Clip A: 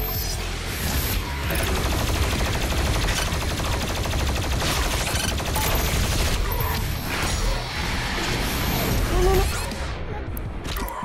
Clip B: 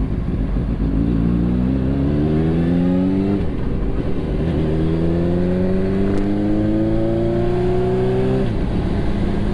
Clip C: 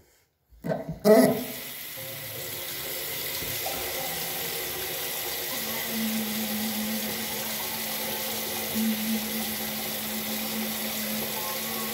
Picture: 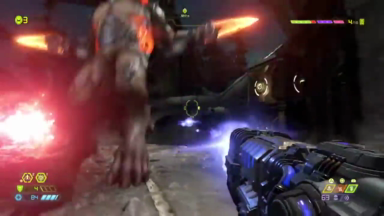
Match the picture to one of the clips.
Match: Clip A